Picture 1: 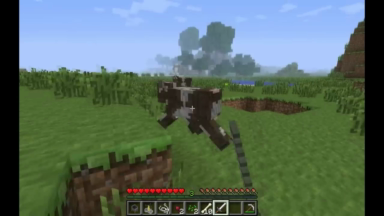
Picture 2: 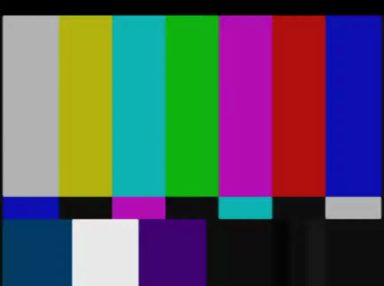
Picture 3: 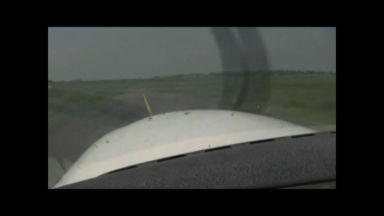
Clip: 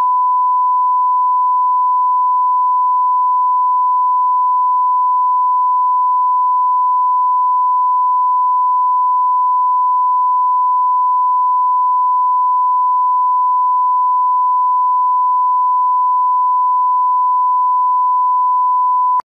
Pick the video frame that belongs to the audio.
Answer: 2